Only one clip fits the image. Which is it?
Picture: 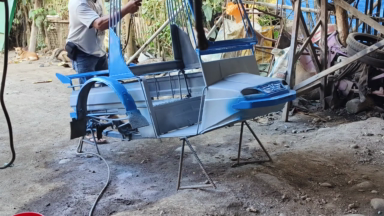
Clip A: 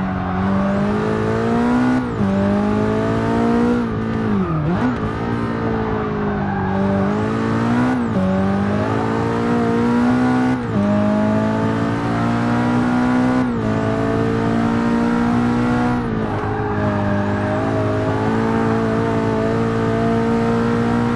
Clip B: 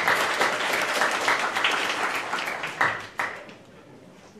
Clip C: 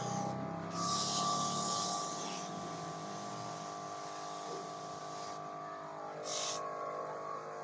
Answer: C